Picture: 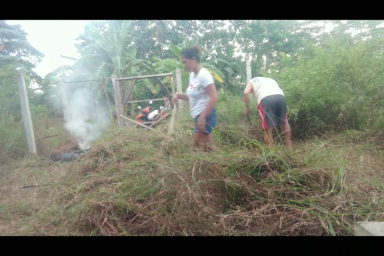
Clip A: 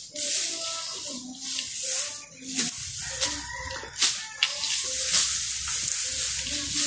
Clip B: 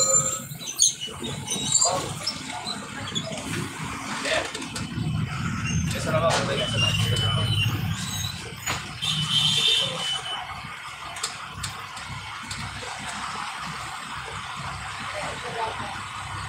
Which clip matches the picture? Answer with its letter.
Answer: A